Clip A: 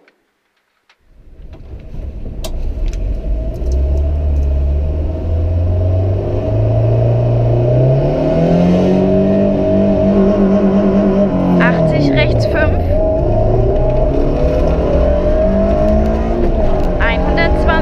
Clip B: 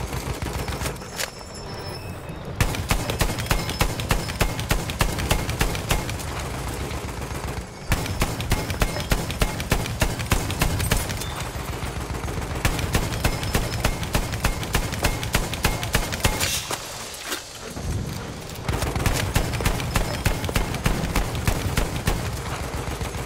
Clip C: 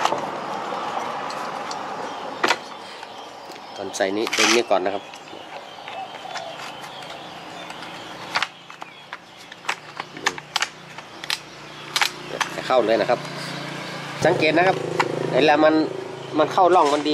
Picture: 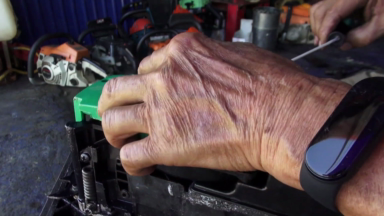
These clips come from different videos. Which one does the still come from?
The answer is C